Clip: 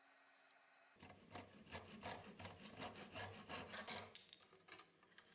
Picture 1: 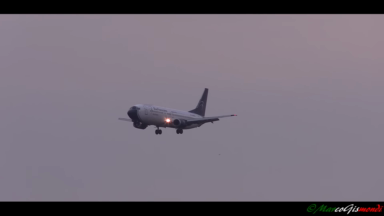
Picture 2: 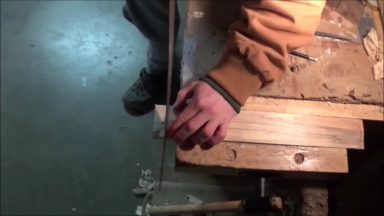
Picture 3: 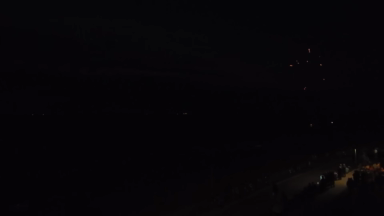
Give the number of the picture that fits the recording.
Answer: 2